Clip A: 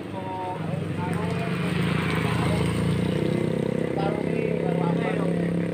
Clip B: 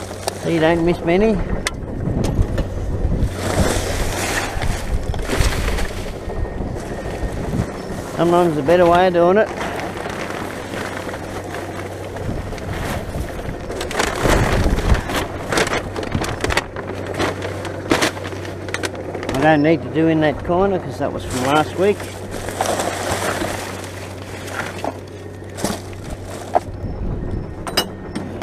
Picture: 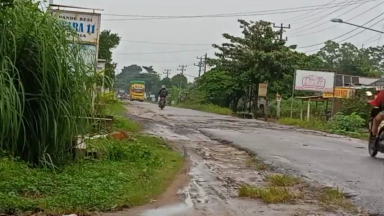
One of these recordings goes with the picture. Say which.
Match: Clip A